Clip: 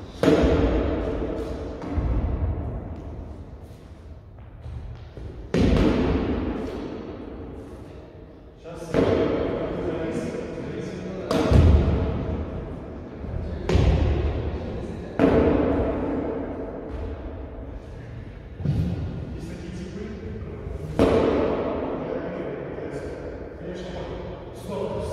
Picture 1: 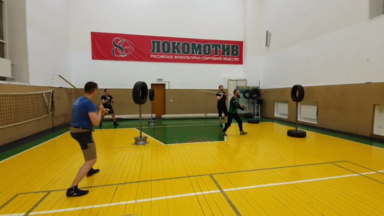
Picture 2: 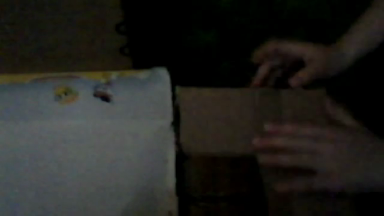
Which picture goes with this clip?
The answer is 1